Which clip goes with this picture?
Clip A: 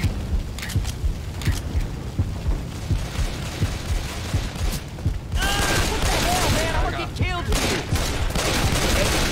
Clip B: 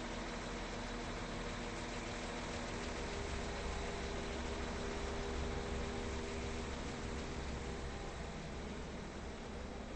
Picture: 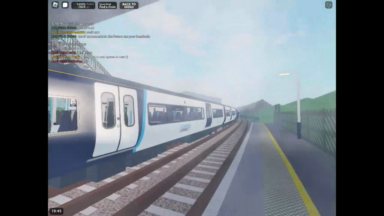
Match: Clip B